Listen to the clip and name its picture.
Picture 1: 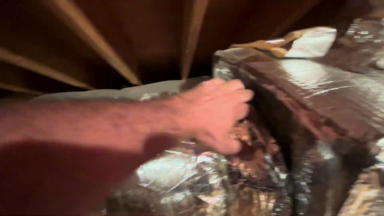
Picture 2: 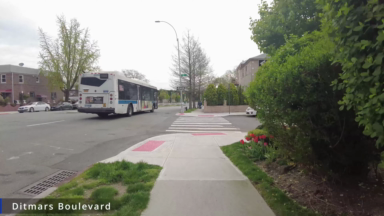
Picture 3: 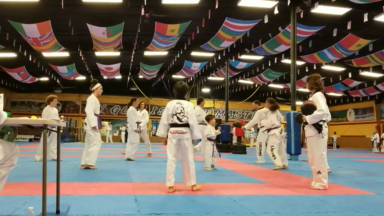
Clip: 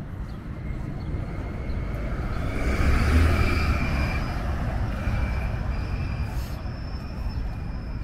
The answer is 2